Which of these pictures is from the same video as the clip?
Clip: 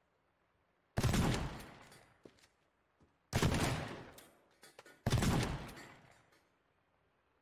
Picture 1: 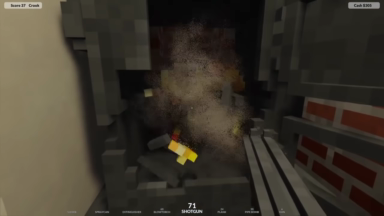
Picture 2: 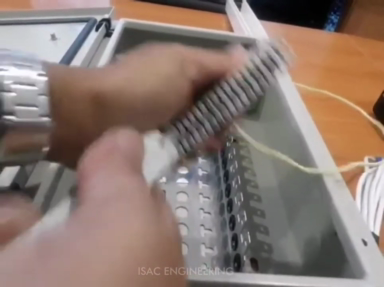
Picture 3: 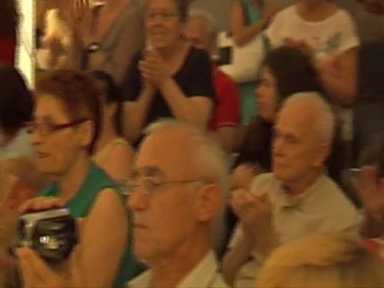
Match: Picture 1